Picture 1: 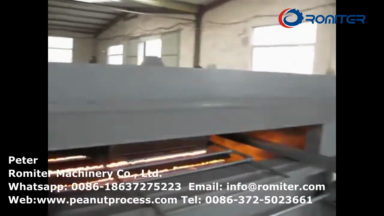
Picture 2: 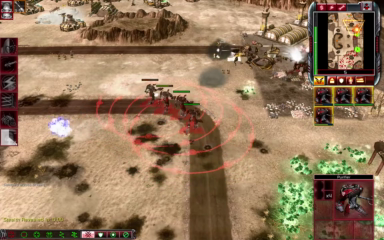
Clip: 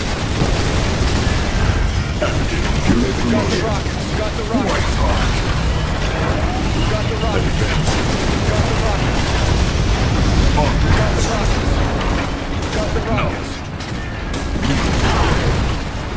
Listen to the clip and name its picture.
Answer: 2